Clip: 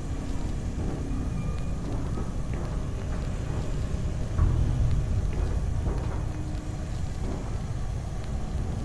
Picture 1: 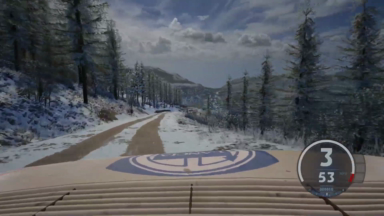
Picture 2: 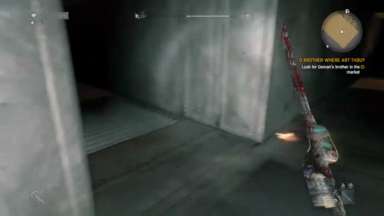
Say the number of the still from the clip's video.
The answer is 2